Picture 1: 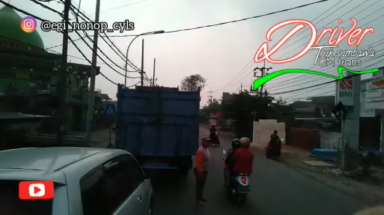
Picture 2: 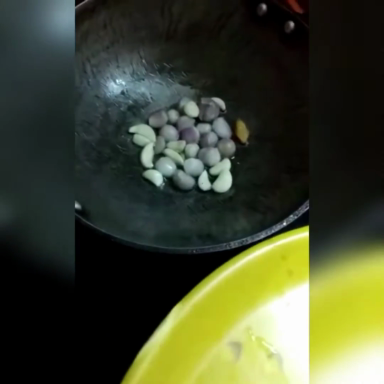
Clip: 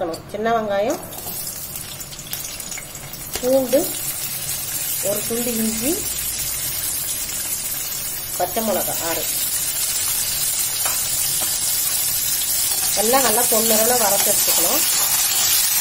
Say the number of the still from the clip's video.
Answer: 2